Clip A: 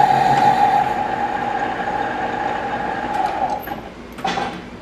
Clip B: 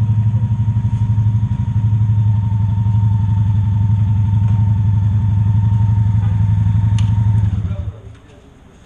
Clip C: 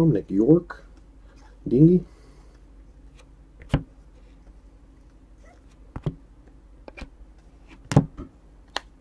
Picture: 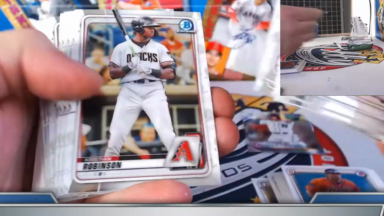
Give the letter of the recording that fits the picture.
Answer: C